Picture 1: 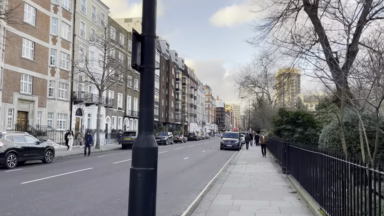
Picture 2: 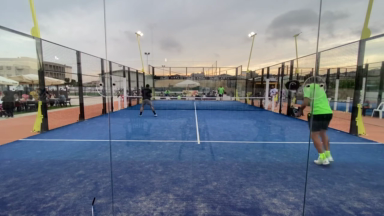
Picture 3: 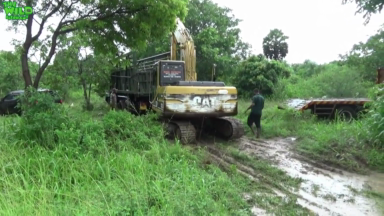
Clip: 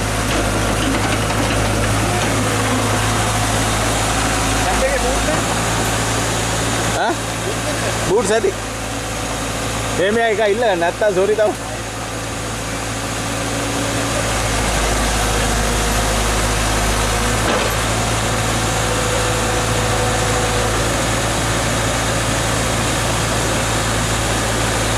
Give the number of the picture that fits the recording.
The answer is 3